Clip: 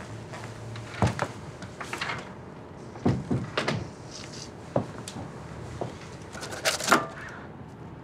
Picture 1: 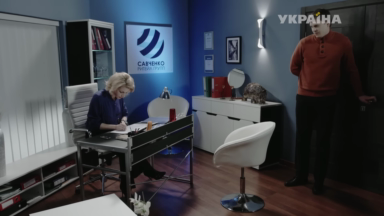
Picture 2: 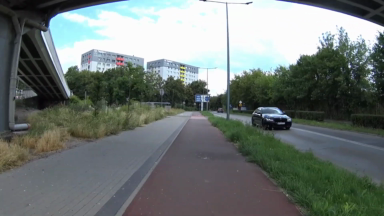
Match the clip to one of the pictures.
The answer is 1